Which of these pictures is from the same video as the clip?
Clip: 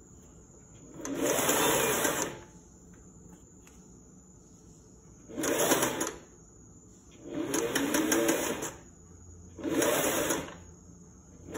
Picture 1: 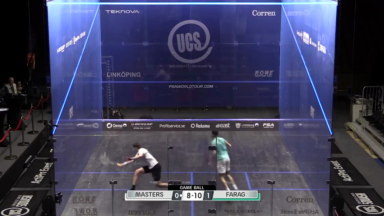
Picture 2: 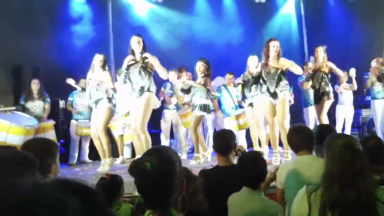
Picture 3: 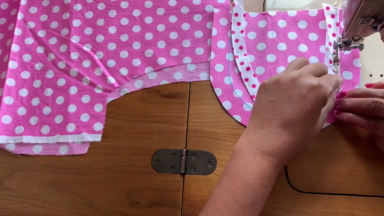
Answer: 3